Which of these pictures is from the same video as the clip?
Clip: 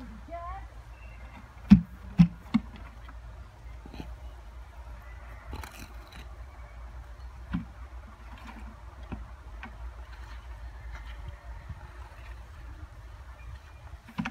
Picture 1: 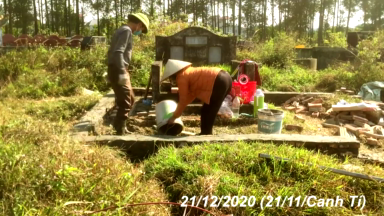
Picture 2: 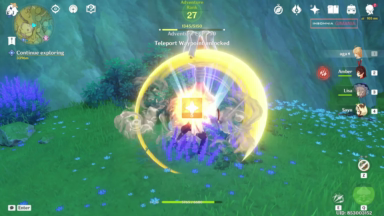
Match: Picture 1